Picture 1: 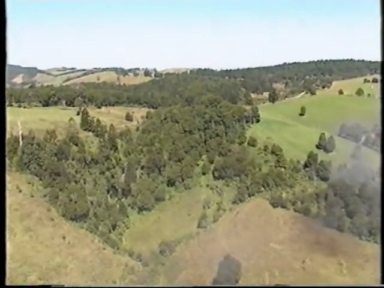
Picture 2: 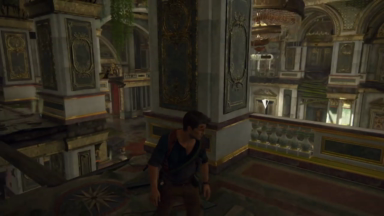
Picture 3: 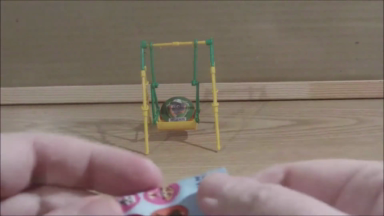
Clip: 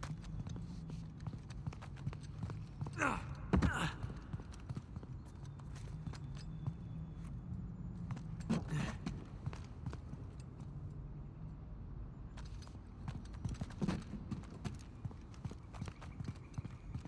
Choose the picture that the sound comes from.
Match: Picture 2